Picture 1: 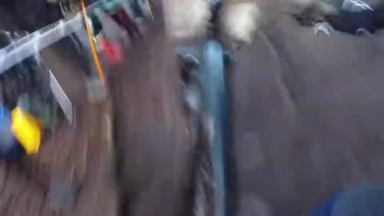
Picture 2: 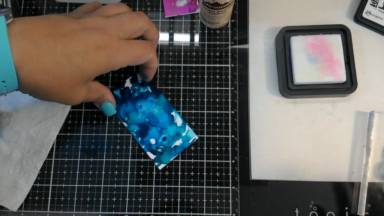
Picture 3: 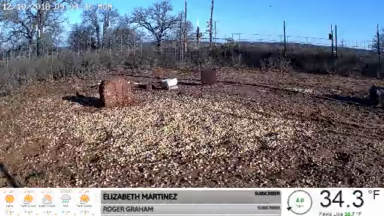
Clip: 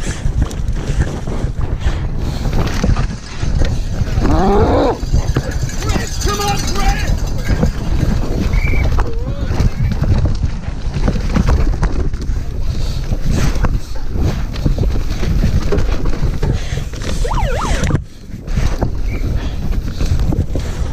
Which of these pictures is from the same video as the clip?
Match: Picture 1